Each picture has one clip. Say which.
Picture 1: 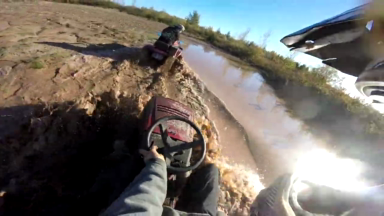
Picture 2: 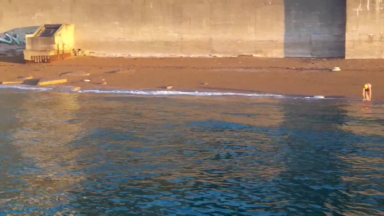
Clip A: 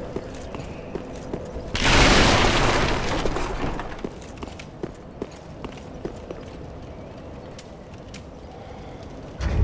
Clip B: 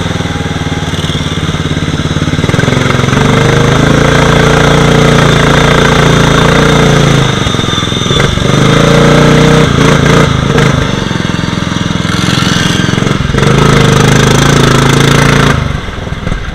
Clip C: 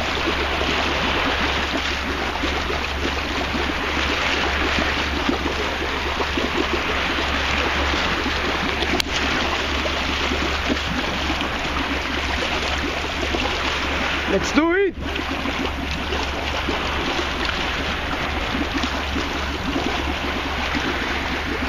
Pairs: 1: B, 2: C